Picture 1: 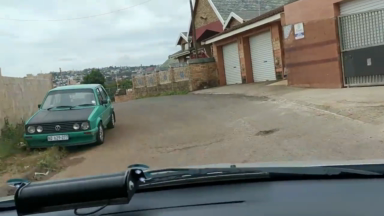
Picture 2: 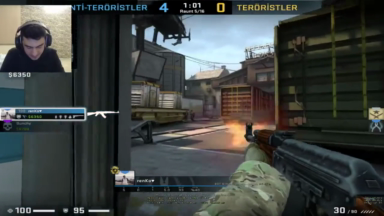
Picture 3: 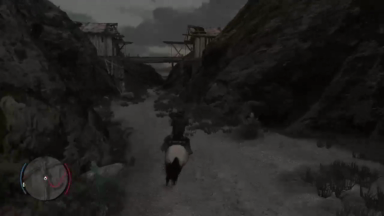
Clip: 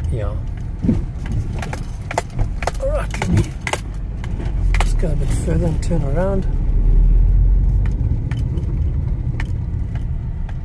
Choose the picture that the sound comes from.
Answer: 1